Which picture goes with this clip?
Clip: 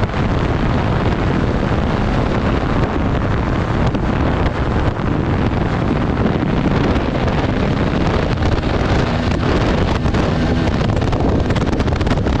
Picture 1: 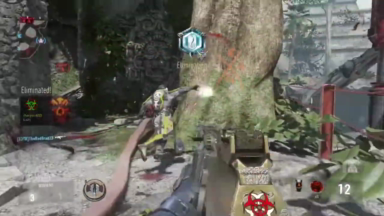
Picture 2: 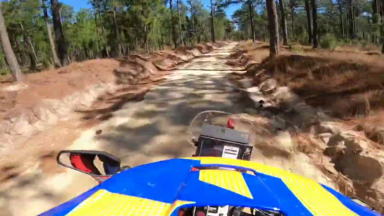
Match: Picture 2